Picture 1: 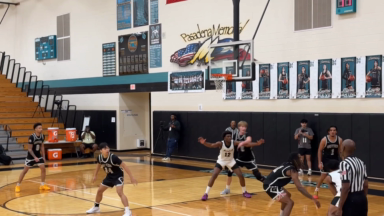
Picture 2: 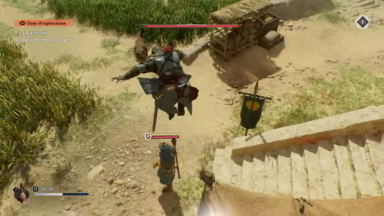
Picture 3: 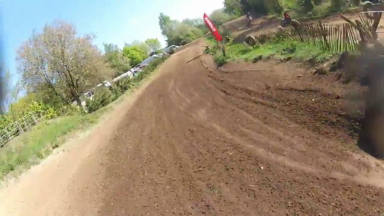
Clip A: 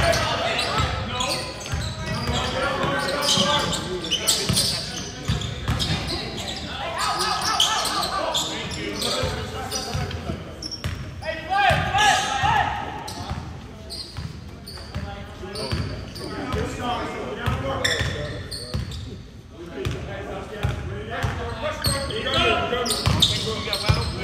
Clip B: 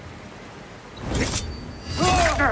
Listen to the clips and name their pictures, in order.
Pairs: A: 1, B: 2